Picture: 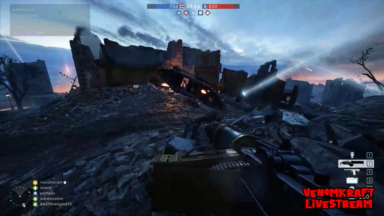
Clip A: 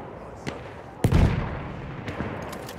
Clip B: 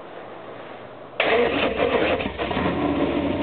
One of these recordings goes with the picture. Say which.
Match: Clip A